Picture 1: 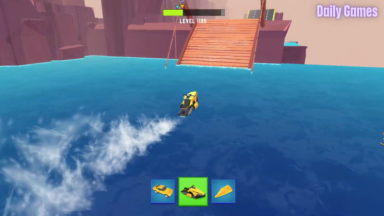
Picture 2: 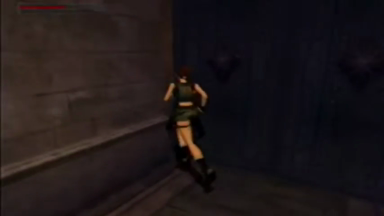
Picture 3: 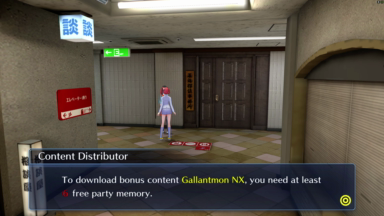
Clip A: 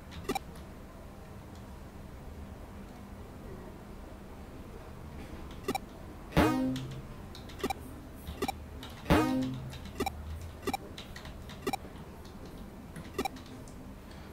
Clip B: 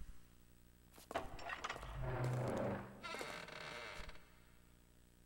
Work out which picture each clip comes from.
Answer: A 3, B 2